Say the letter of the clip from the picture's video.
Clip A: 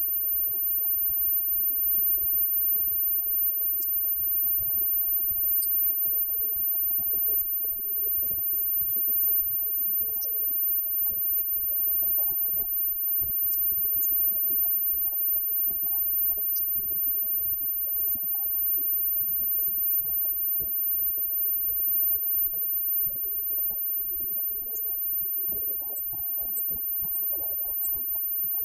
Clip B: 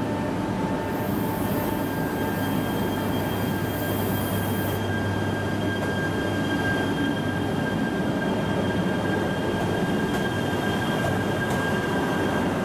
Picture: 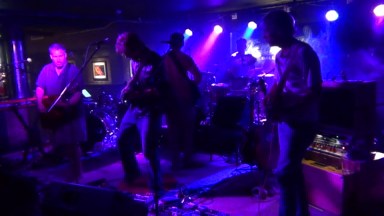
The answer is A